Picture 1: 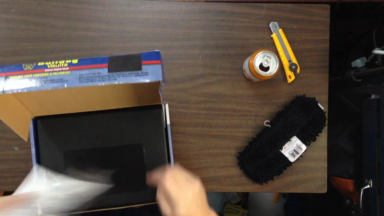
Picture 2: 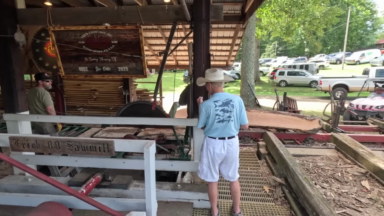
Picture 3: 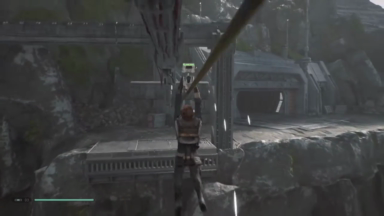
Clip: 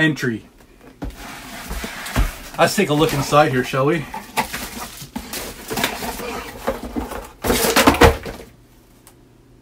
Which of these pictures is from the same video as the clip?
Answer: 1